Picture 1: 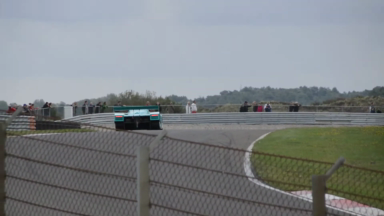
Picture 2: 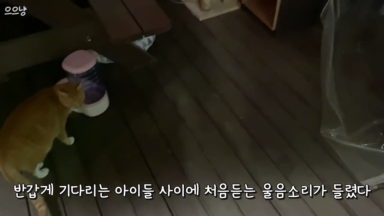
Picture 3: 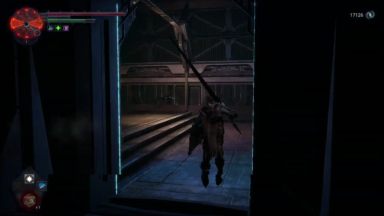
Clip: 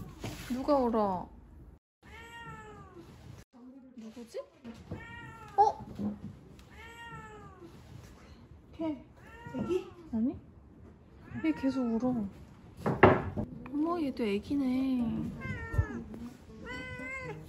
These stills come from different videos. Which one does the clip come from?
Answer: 2